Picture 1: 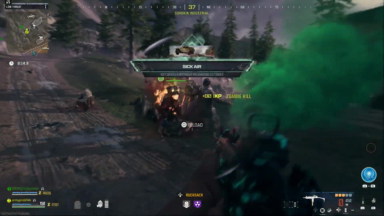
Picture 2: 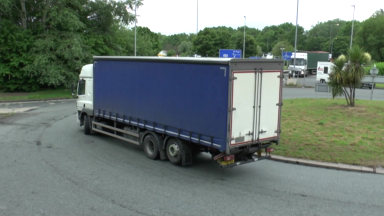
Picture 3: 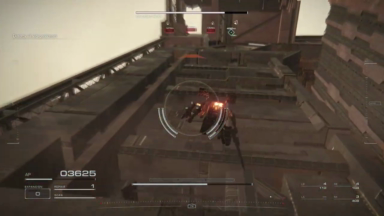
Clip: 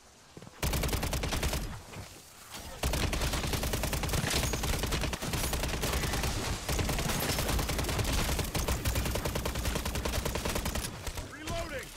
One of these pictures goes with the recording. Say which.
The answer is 1